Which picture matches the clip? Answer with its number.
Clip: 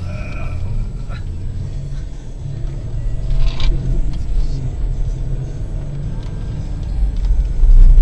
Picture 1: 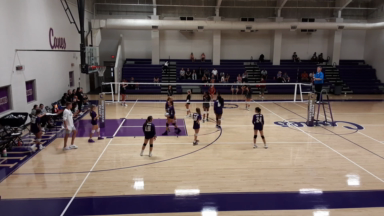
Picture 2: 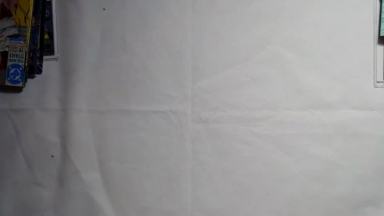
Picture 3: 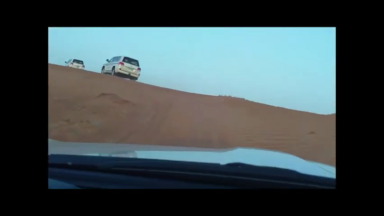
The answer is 3